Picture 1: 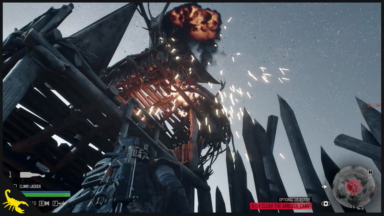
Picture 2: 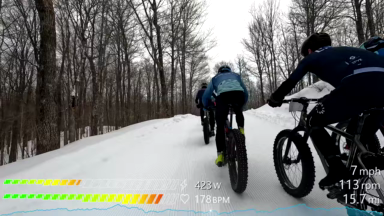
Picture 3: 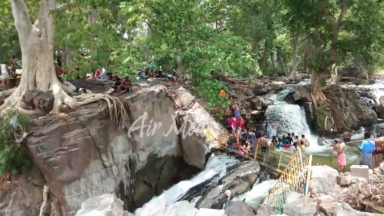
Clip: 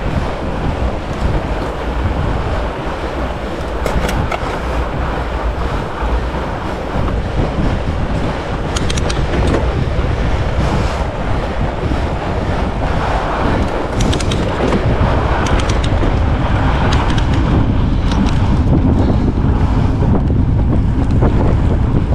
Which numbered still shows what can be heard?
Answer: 2